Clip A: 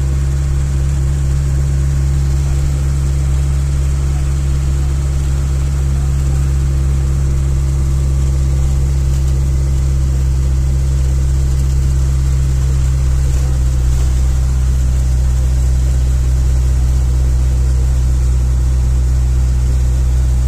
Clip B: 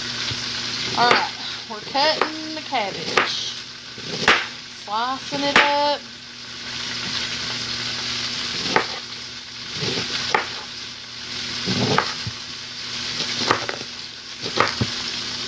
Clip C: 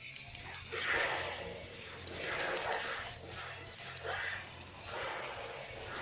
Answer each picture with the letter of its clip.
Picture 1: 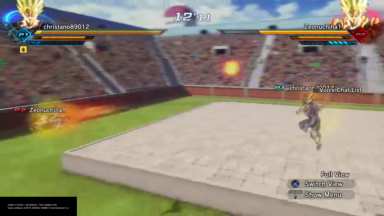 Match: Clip C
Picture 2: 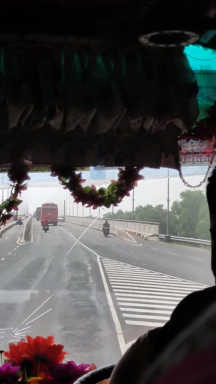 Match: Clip A